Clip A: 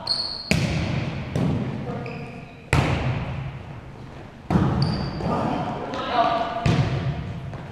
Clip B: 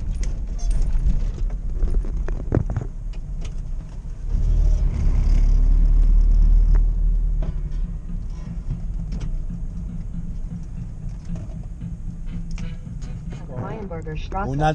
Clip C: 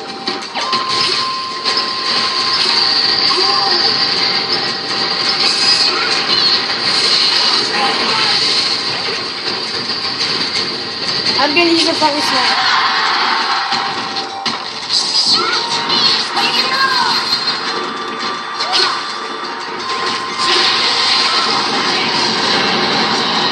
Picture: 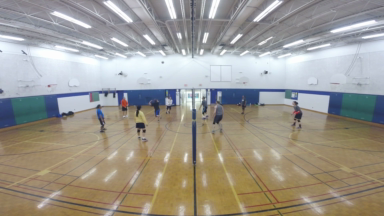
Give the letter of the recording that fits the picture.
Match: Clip A